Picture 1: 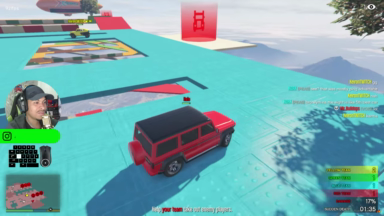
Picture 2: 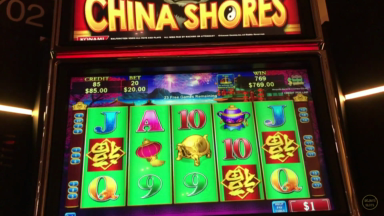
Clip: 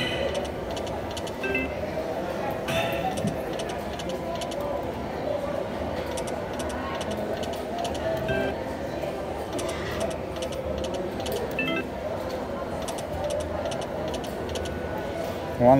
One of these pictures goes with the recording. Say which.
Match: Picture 2